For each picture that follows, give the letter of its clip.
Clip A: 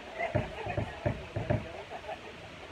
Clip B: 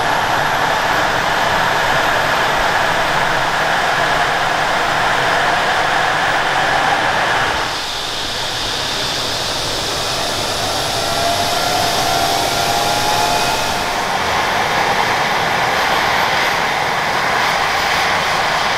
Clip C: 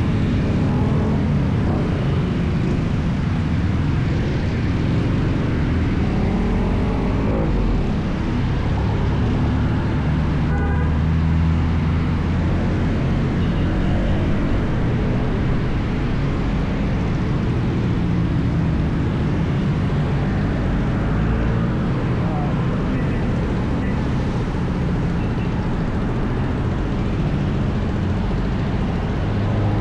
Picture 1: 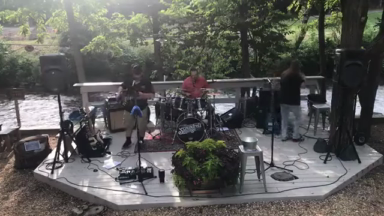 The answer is A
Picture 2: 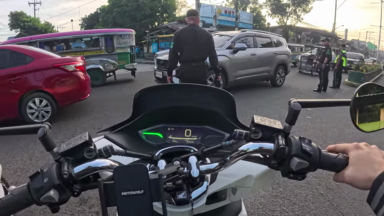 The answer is C